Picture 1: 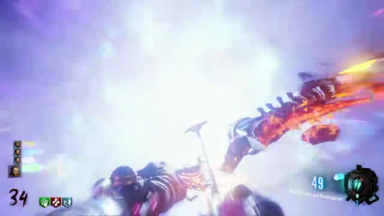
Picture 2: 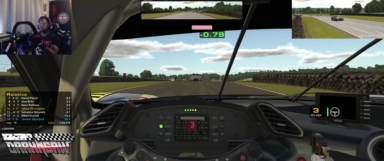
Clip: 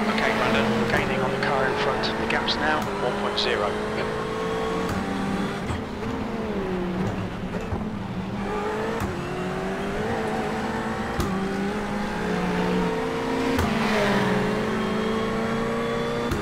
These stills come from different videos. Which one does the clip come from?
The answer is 2